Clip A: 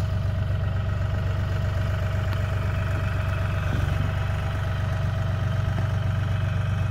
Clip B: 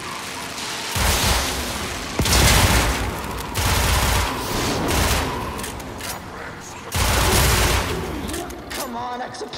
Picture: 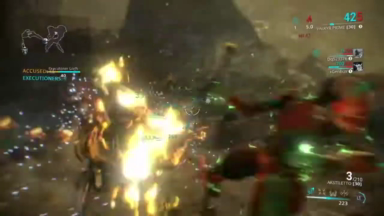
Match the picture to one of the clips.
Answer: B